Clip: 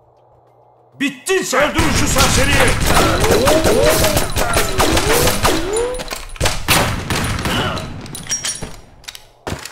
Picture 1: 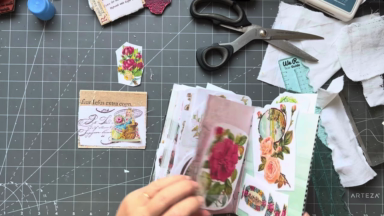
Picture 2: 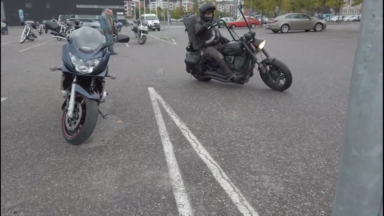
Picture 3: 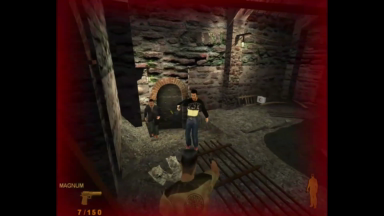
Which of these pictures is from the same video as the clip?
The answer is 3